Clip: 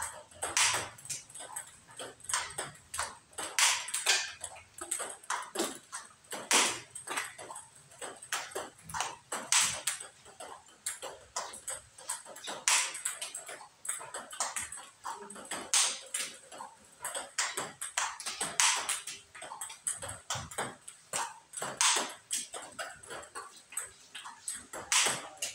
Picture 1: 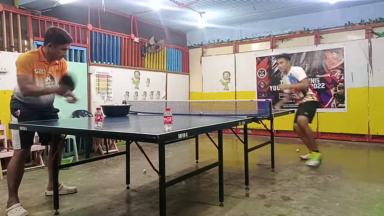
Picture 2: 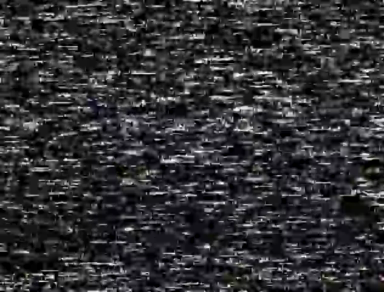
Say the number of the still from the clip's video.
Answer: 1